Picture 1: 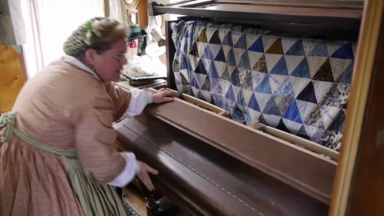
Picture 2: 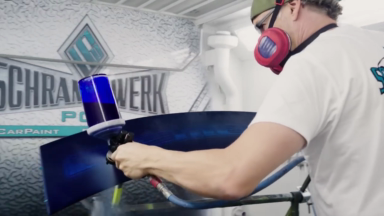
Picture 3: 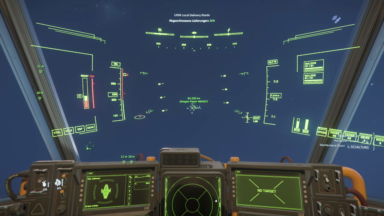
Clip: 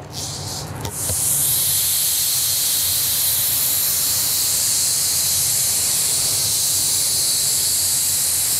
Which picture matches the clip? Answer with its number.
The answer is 2